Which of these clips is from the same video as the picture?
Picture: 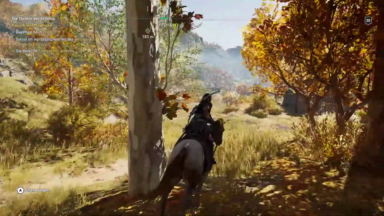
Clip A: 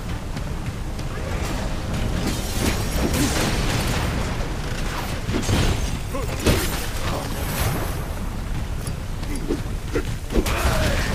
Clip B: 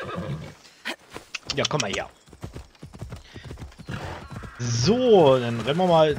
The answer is B